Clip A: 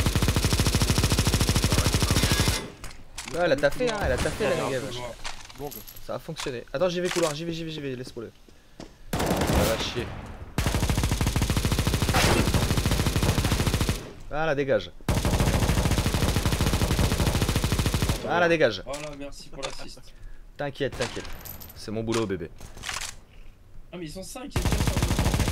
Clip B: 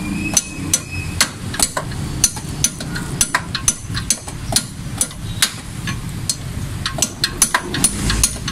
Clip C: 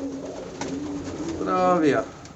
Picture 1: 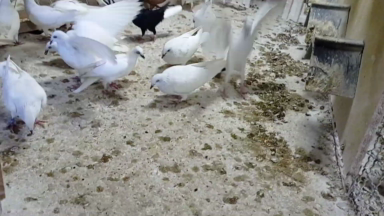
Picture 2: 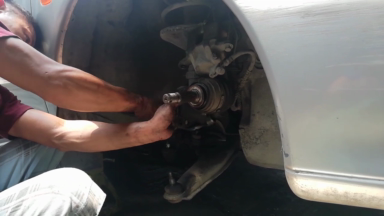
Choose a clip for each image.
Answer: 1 C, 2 B